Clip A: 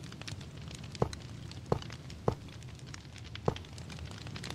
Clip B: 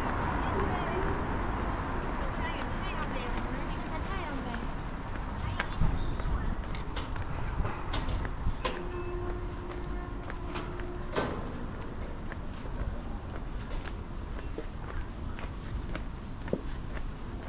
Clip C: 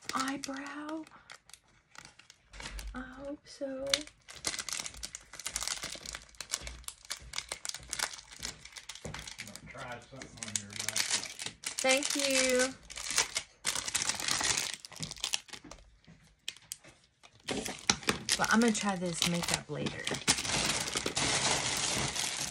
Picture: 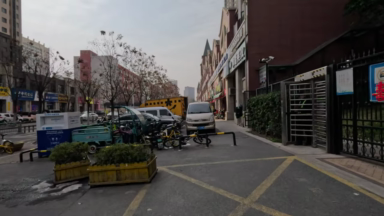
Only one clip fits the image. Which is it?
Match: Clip B